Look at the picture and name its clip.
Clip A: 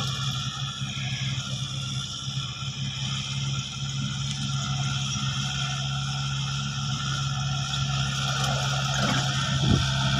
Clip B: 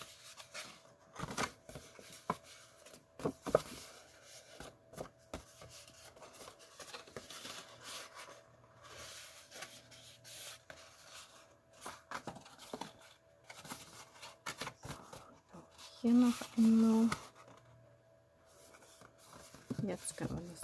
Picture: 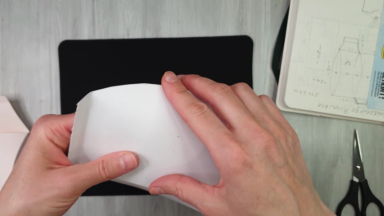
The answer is B